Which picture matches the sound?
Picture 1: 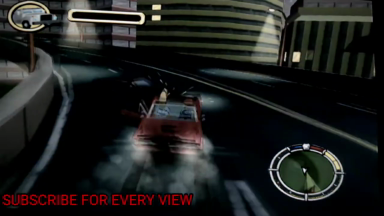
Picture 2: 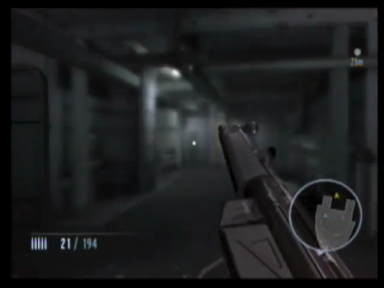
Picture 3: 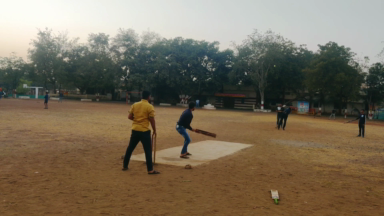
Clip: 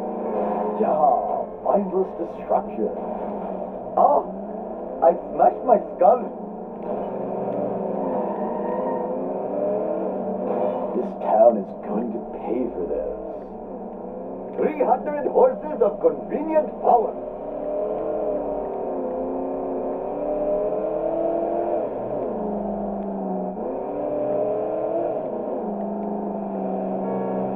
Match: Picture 1